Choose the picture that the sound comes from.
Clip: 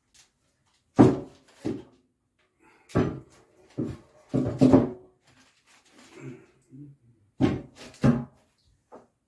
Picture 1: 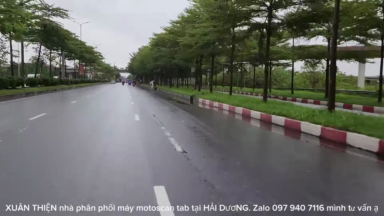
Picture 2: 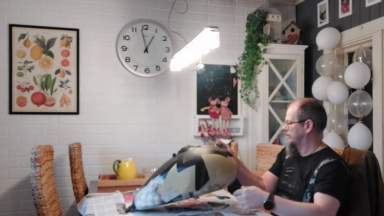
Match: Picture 2